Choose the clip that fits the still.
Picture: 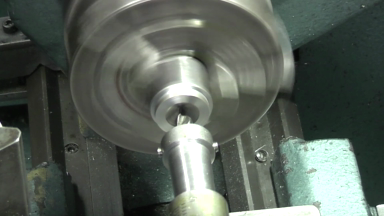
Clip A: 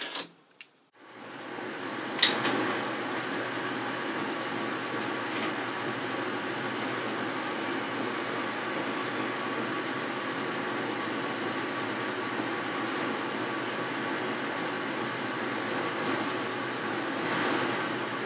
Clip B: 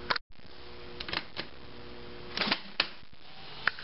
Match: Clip A